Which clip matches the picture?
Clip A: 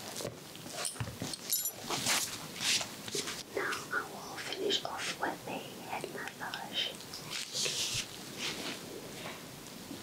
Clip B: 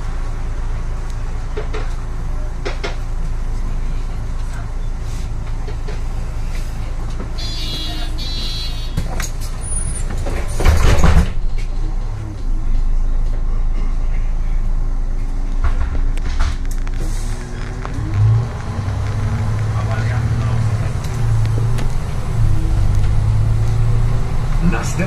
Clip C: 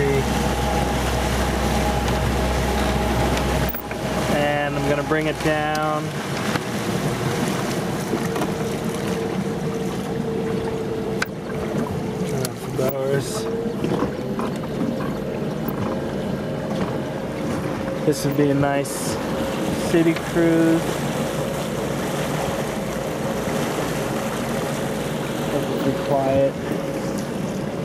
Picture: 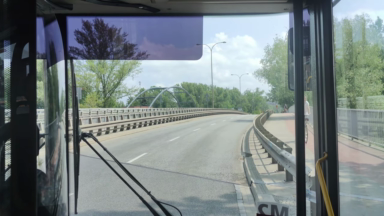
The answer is B